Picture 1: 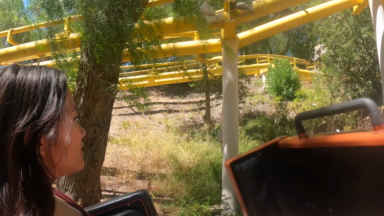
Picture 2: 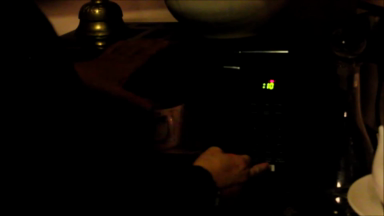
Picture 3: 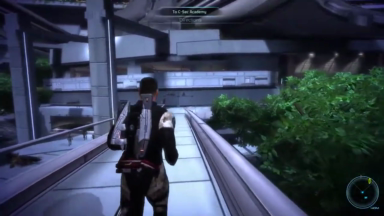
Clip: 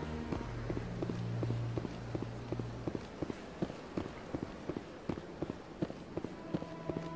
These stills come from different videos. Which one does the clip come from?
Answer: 3